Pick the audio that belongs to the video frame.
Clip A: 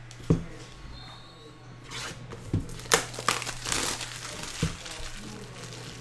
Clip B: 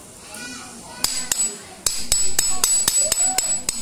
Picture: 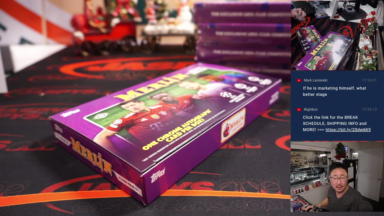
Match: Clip A